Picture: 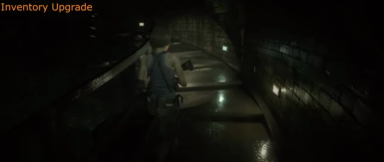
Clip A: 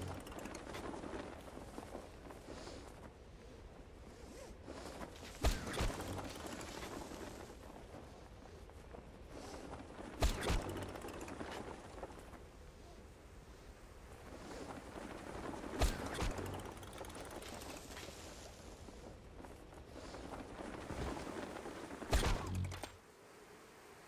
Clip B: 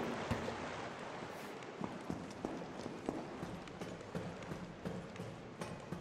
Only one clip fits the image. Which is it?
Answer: B